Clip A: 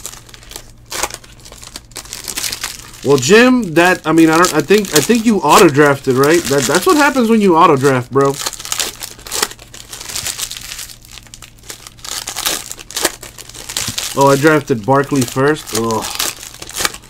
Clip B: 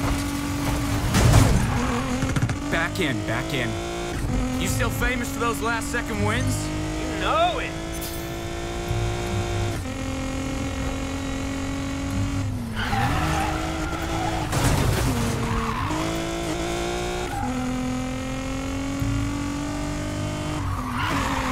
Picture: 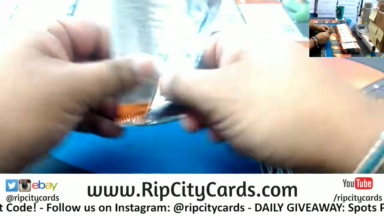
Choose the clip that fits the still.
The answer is A